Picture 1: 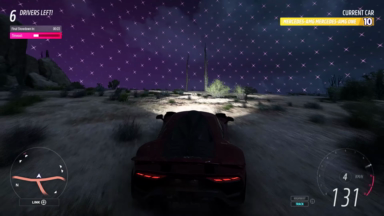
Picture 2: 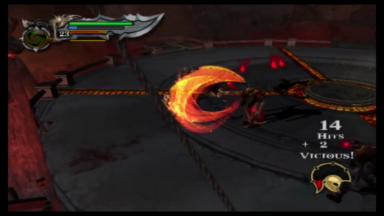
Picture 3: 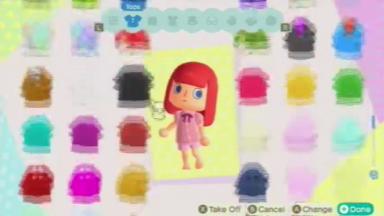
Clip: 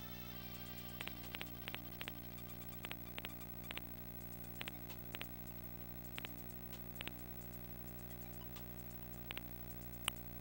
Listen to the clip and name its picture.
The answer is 3